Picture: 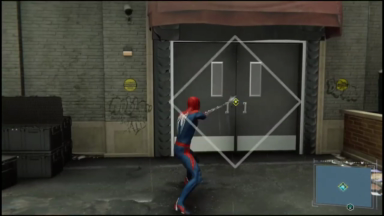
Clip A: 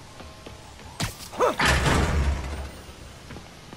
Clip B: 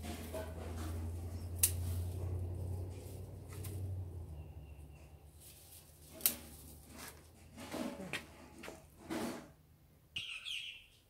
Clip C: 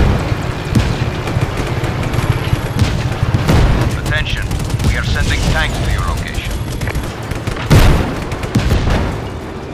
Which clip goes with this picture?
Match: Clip A